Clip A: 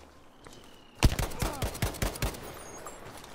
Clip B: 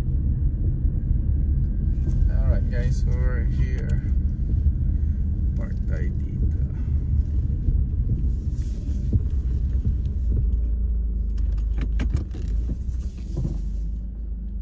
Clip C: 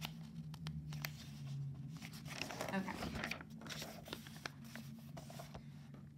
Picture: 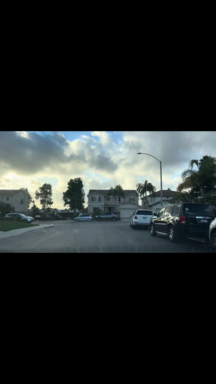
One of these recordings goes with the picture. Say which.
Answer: B